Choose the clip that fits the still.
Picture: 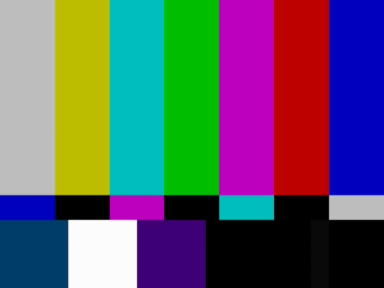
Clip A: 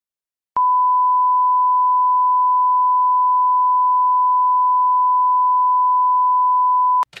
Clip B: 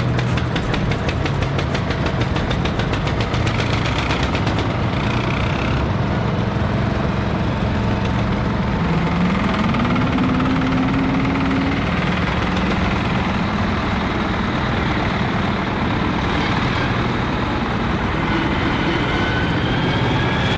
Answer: A